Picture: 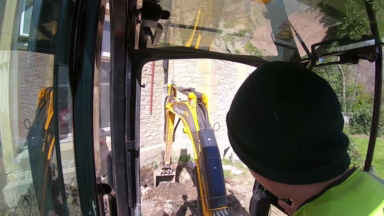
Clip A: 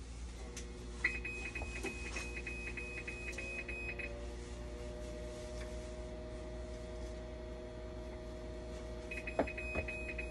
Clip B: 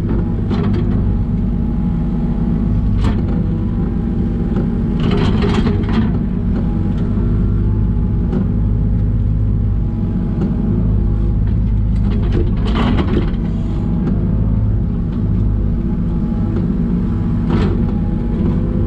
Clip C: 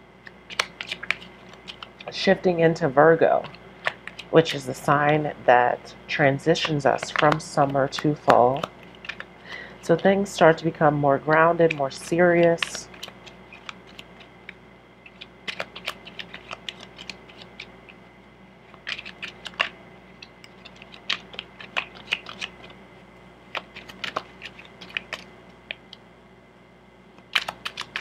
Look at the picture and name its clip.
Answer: B